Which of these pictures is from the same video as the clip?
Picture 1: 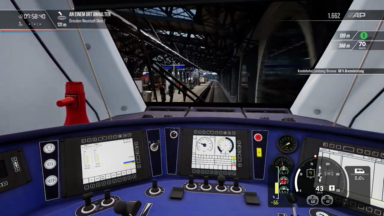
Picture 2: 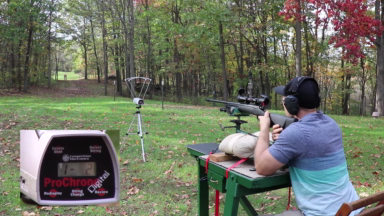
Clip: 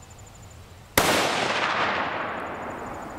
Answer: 2